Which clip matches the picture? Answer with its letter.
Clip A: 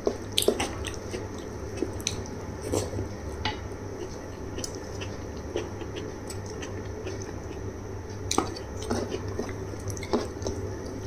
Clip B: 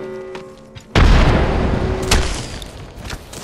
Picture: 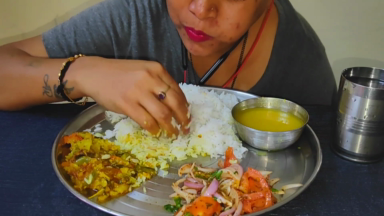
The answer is A